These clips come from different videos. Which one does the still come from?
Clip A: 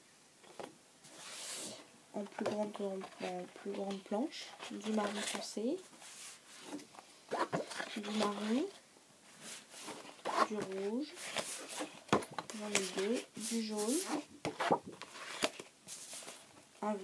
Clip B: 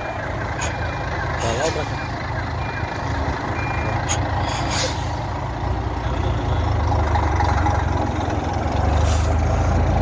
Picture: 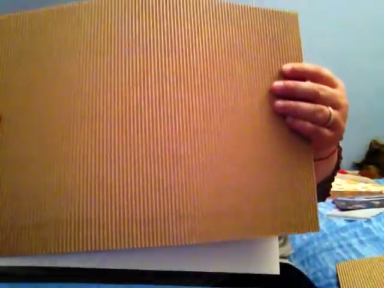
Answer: A